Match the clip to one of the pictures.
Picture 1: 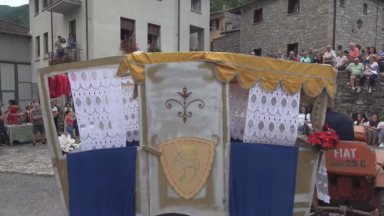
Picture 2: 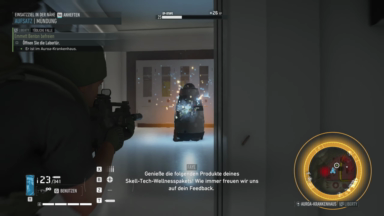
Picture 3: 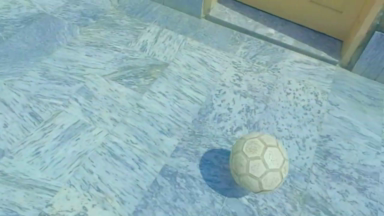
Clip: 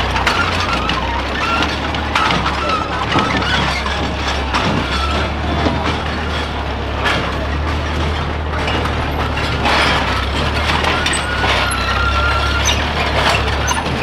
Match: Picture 1